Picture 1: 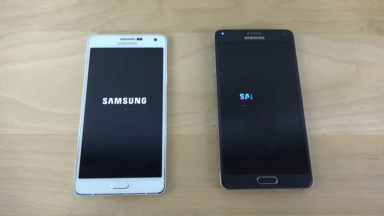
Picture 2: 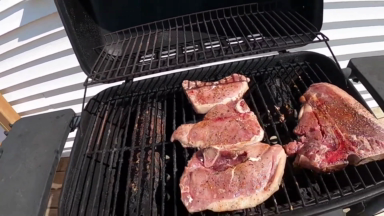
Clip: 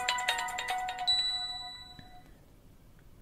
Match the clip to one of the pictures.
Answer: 1